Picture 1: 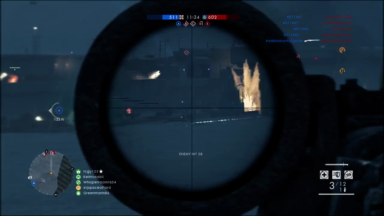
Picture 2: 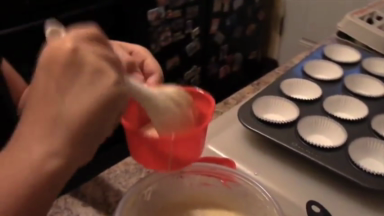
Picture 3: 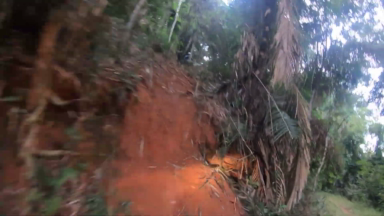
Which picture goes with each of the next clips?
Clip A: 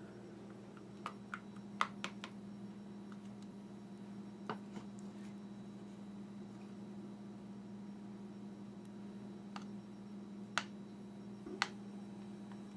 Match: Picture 2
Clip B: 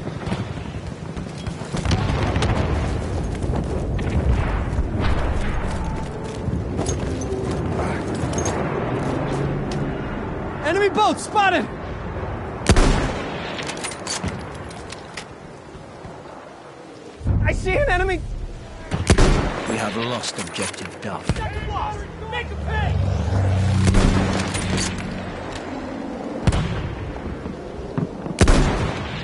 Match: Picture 1